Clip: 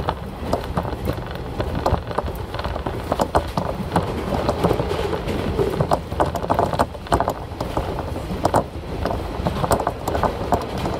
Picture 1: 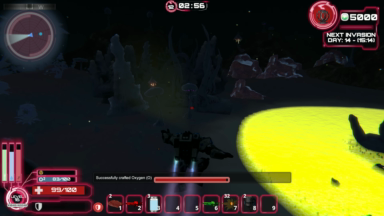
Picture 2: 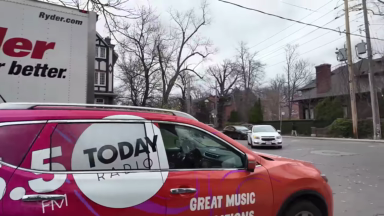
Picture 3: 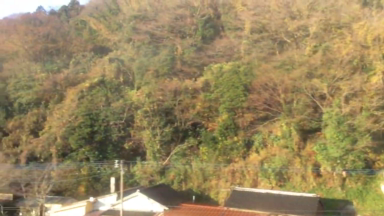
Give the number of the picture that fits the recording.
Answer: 3